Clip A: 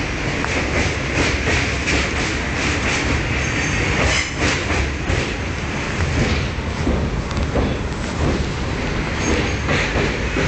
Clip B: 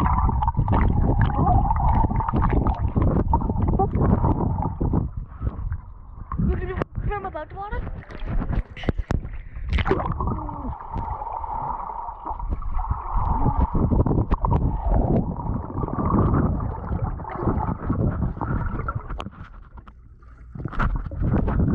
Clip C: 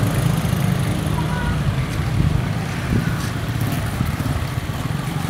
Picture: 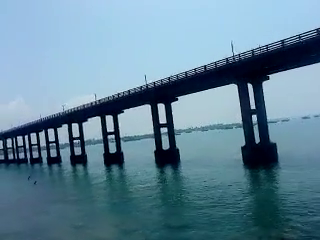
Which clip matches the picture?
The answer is A